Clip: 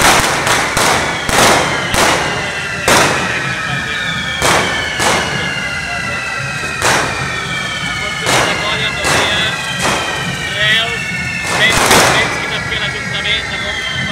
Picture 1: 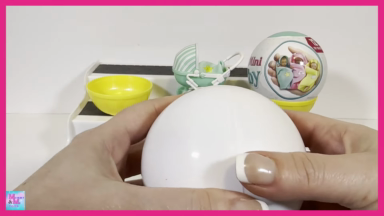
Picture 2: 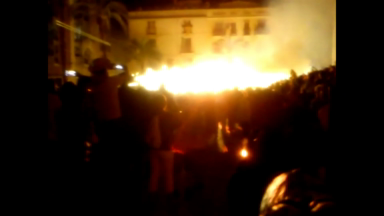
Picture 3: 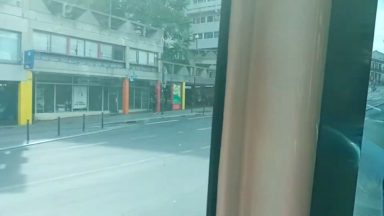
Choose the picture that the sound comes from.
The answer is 2